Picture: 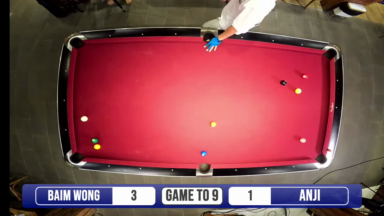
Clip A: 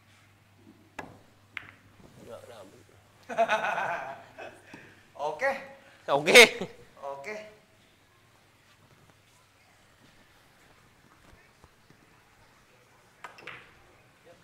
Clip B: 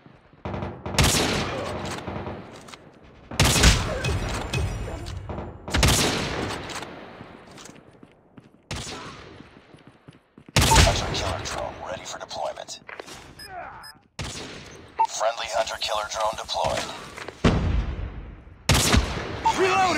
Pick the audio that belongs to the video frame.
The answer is A